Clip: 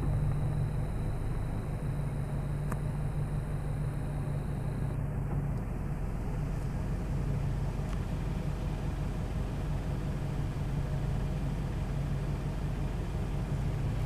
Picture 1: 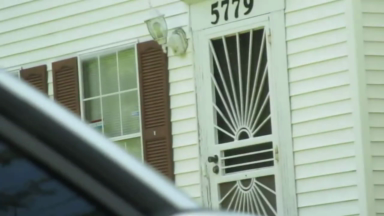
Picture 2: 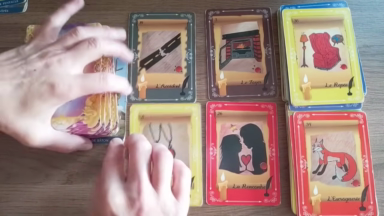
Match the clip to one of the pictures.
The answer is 1